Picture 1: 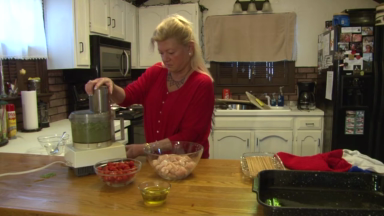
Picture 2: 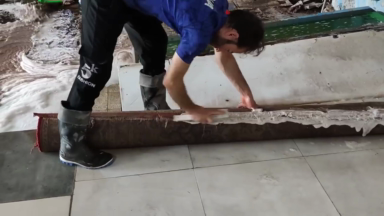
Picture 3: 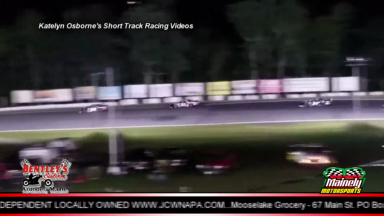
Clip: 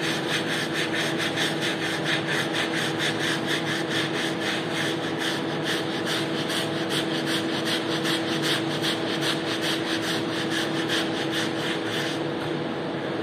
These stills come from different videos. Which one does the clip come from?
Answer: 2